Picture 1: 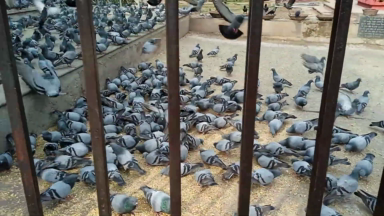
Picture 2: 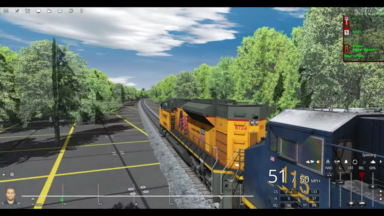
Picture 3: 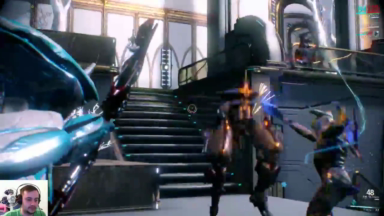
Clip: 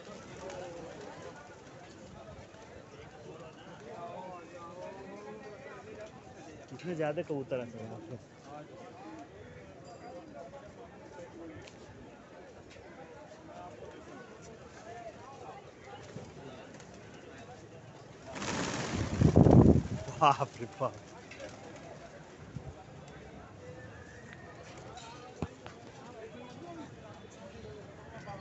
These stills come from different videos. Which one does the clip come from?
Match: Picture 1